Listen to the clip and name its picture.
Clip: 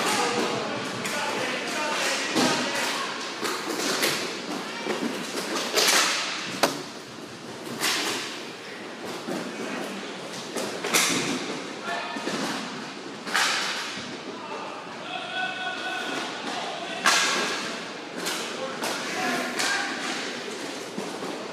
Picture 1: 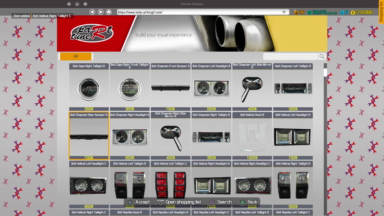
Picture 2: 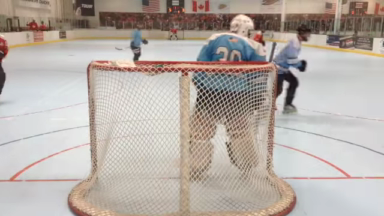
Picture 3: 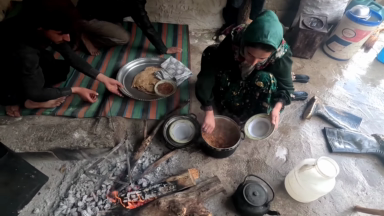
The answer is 2